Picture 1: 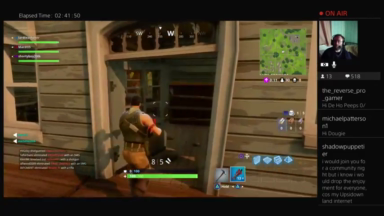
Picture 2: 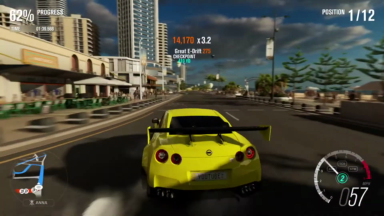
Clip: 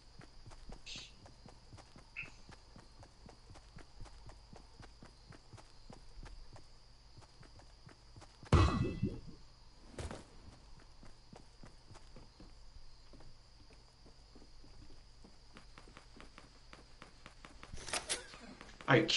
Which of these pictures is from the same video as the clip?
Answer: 1